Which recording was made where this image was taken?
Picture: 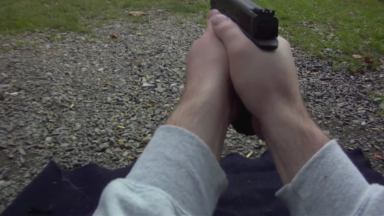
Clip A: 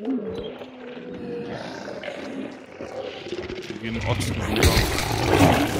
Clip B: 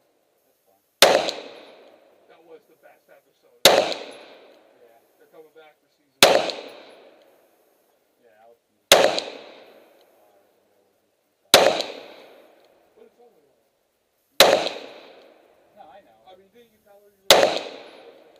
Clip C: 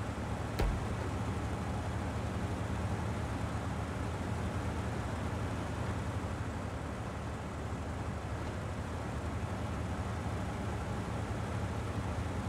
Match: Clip B